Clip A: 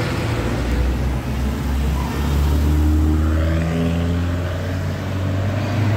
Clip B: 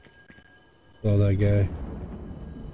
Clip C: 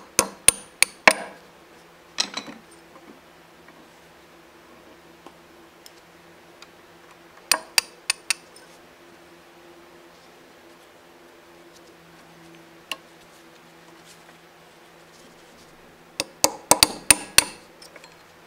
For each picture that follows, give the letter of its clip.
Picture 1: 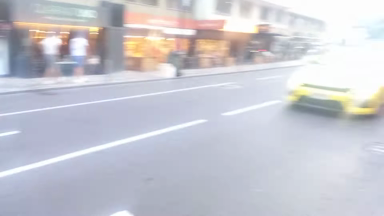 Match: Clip A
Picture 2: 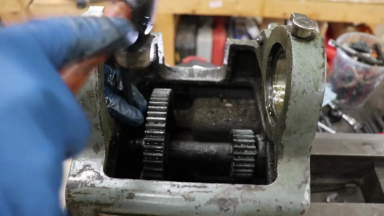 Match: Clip C